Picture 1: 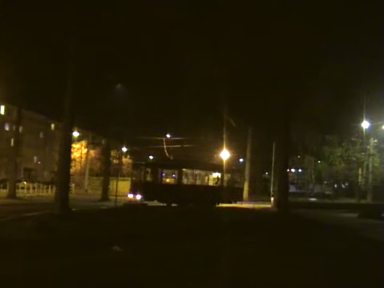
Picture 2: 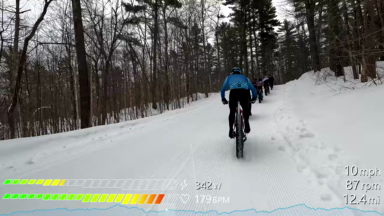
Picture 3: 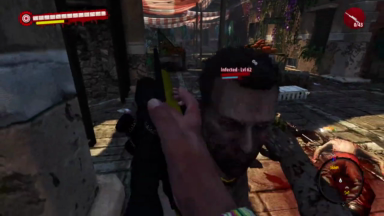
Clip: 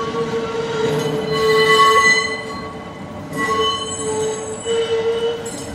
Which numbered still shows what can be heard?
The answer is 1